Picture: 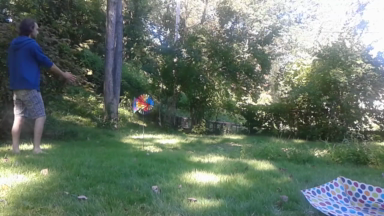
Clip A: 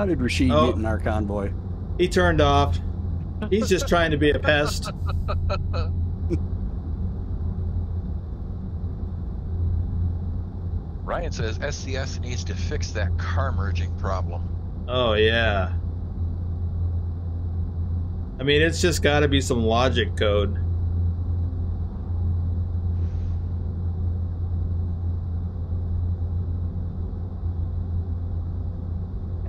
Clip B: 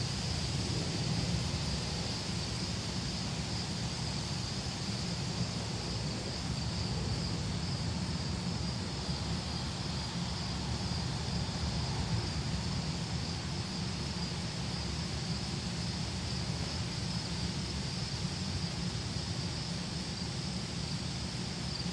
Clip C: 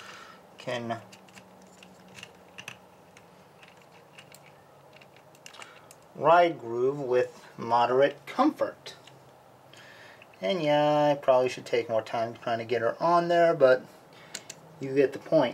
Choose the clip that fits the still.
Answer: B